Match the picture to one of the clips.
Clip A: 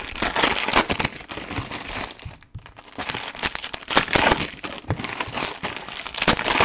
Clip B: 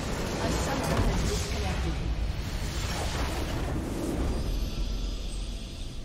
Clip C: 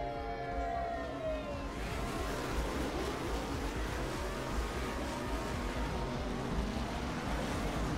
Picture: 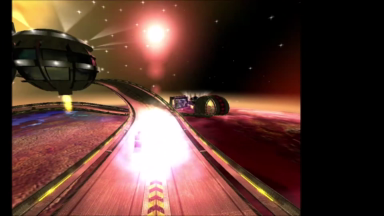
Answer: C